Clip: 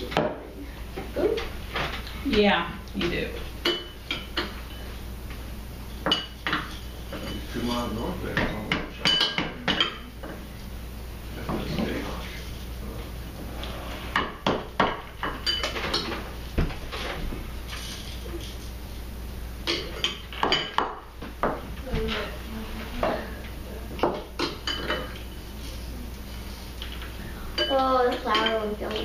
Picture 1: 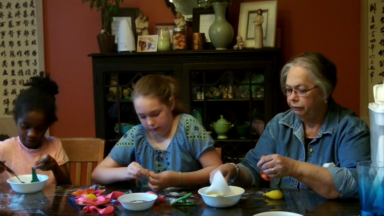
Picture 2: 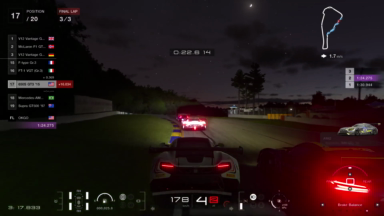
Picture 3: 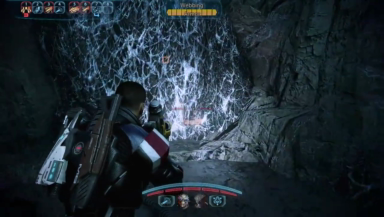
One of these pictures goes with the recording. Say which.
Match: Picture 1